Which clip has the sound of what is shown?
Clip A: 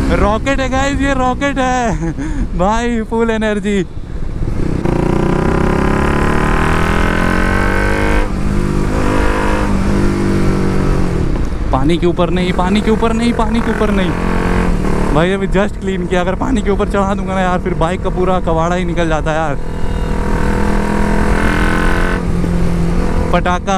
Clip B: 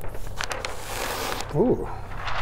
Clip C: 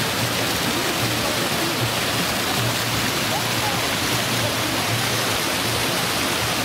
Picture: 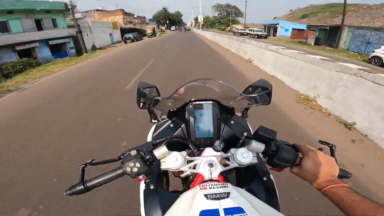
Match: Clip A